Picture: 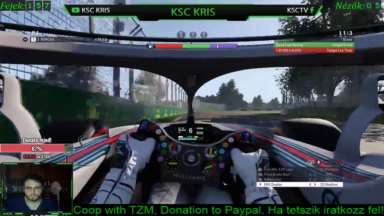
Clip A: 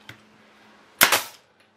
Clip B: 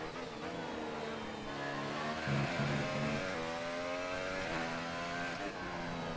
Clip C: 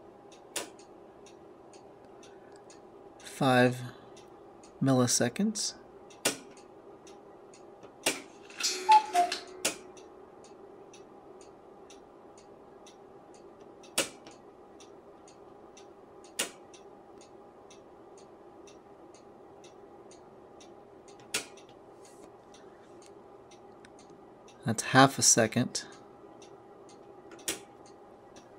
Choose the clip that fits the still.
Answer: B